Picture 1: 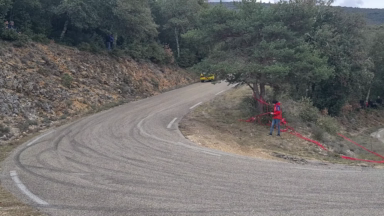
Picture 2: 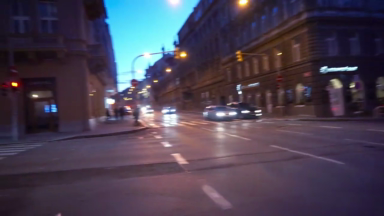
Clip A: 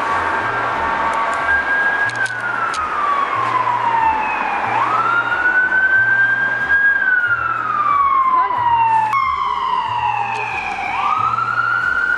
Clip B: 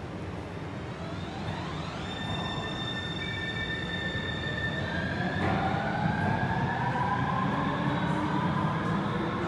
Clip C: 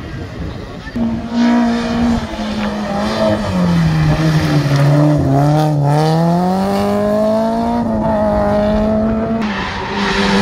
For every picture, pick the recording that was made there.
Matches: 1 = C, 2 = A